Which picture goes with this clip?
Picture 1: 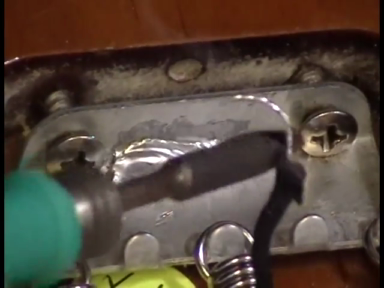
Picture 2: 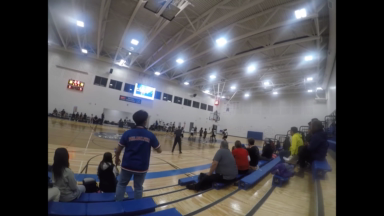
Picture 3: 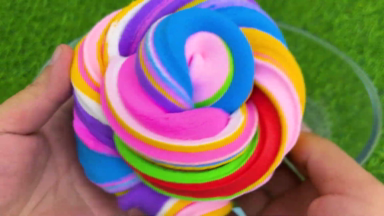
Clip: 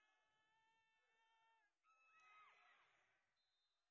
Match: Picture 2